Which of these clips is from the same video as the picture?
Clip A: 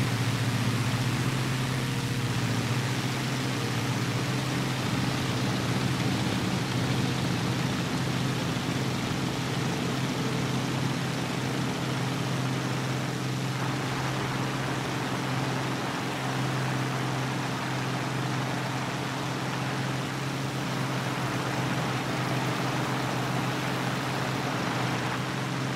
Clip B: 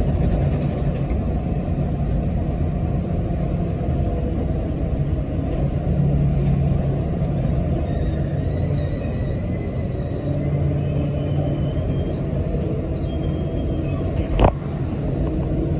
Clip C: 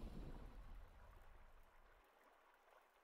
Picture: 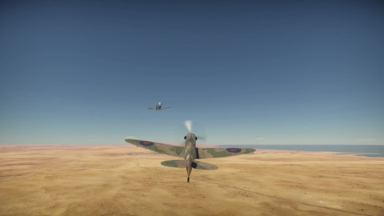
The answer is A